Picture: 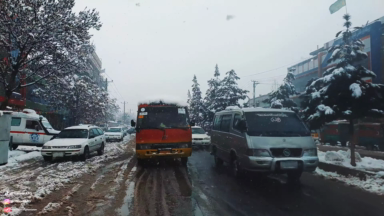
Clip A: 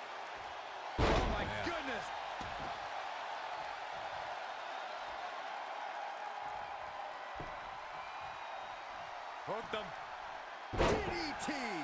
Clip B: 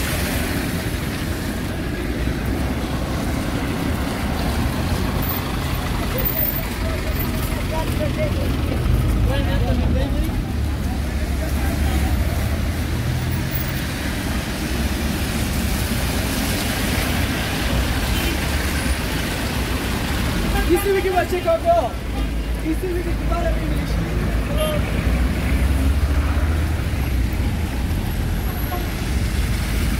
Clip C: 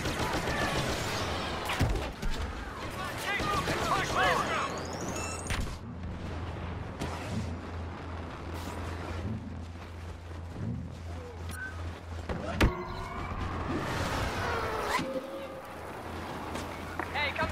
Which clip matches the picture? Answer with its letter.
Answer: B